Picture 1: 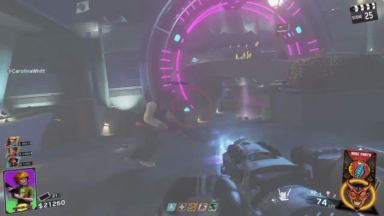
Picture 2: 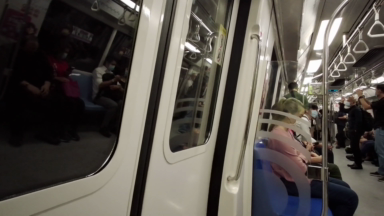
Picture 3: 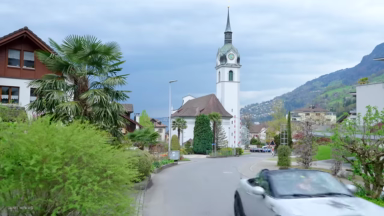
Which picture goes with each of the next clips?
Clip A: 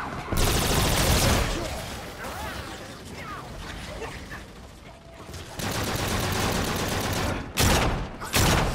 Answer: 1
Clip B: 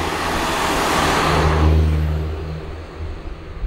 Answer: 3